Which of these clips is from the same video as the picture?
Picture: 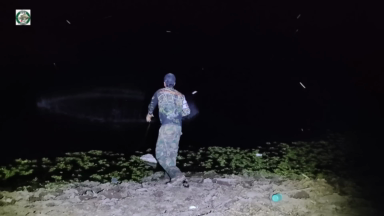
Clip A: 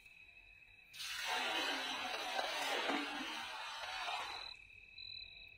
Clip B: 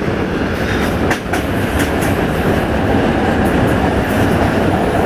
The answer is A